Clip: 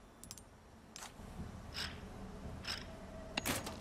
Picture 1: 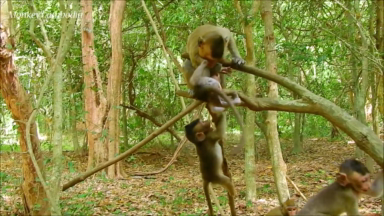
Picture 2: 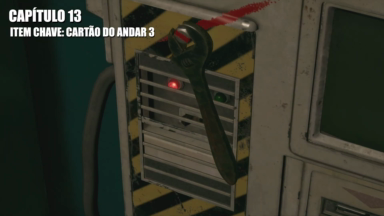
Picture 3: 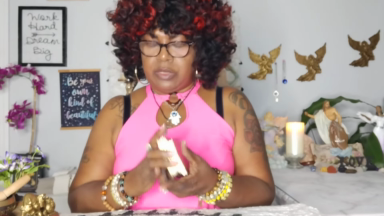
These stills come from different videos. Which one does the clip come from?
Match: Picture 2